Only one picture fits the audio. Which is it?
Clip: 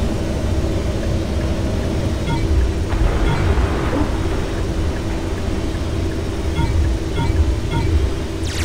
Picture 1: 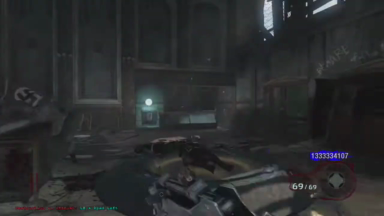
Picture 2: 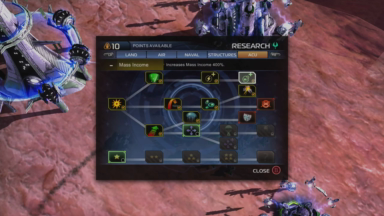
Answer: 2